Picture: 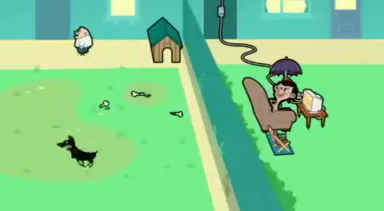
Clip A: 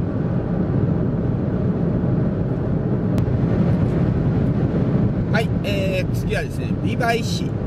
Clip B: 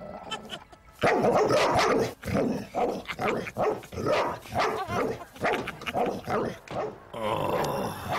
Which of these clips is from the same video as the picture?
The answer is B